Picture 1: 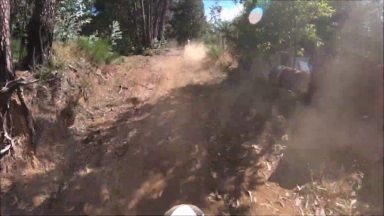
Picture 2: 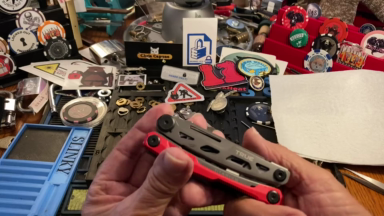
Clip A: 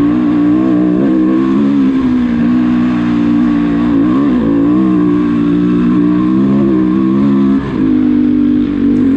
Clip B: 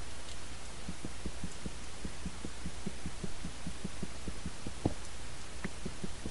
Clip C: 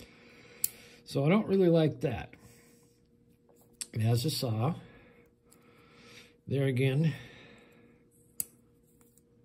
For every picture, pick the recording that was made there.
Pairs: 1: A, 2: C